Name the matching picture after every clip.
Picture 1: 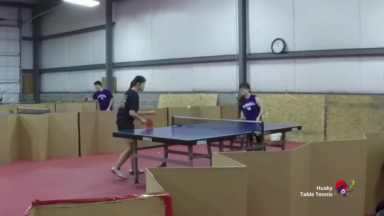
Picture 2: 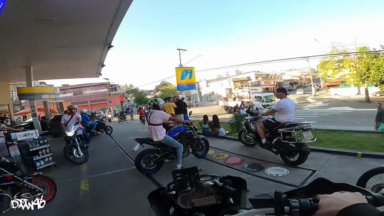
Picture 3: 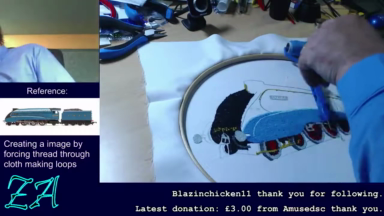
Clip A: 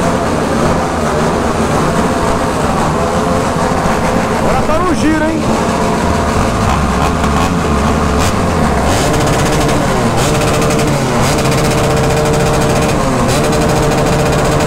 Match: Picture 2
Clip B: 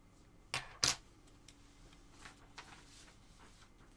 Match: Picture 3